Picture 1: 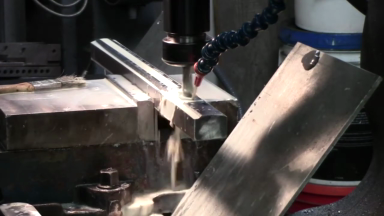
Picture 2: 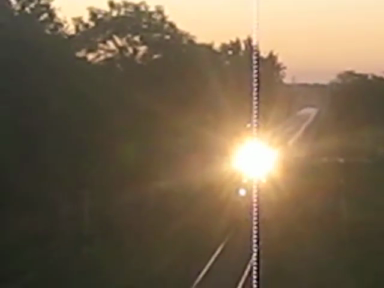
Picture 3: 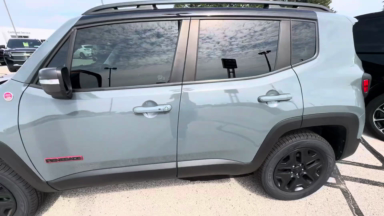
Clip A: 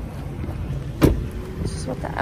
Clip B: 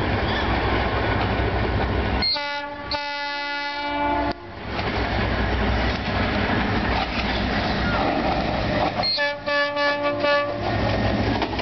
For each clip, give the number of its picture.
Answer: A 3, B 2